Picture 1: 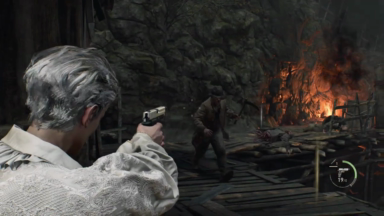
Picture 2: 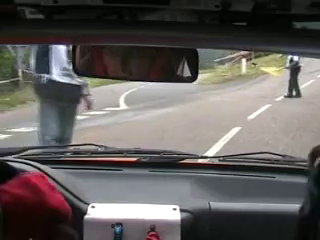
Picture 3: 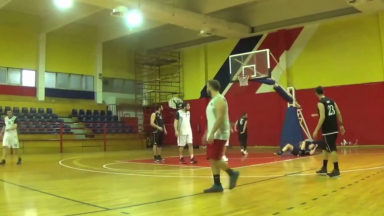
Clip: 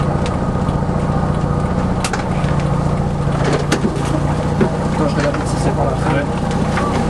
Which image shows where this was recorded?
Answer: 2